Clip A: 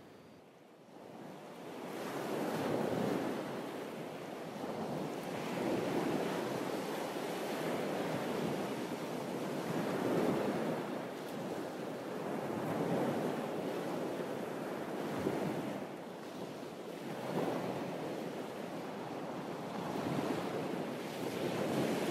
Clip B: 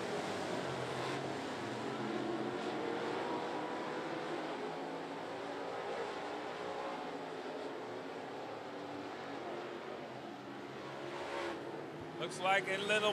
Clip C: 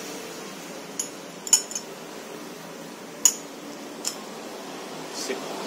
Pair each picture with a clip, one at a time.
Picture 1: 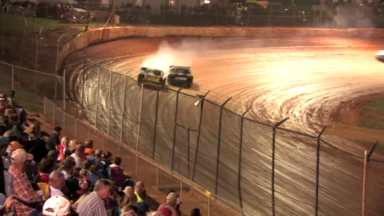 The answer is B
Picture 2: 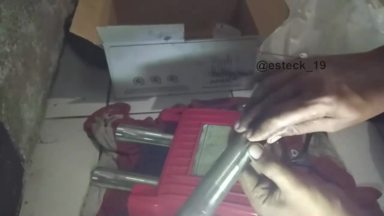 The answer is C